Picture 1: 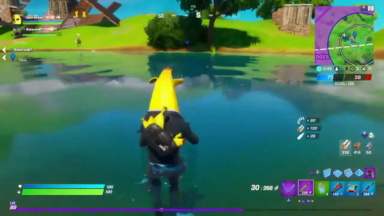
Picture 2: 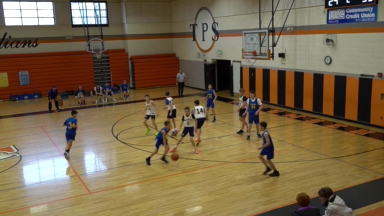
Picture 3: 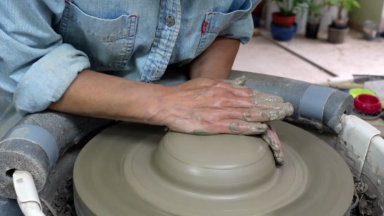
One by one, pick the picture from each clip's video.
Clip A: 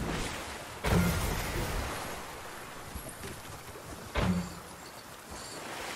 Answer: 1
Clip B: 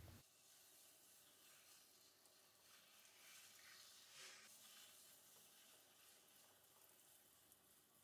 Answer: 3